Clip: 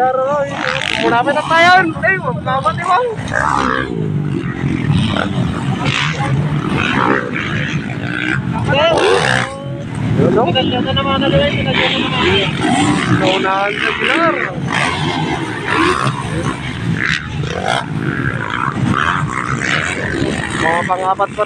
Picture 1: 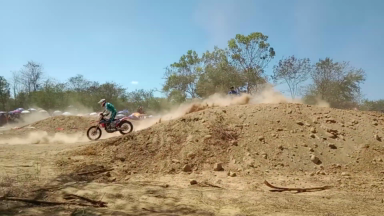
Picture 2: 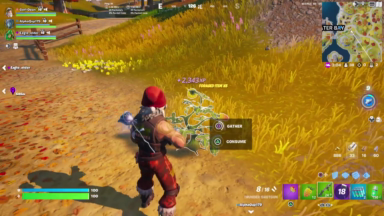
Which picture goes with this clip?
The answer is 1